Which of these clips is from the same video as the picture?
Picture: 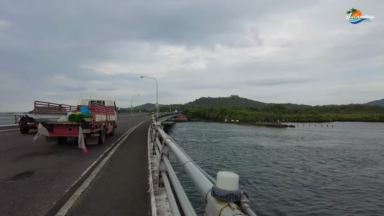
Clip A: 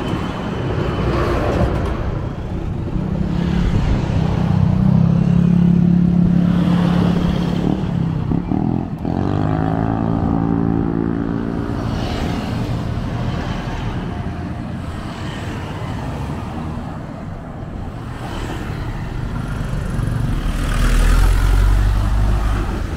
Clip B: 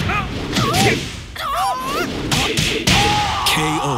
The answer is A